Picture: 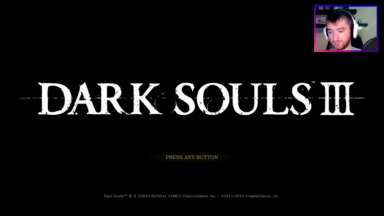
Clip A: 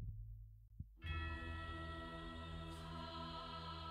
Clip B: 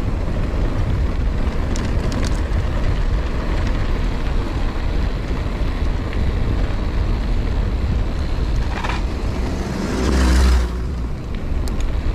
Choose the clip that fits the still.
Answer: A